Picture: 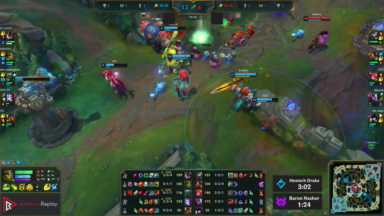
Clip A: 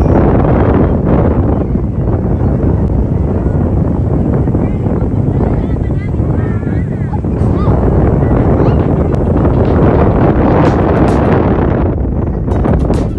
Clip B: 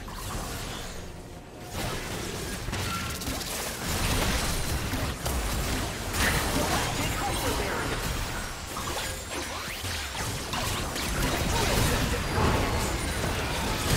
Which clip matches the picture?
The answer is B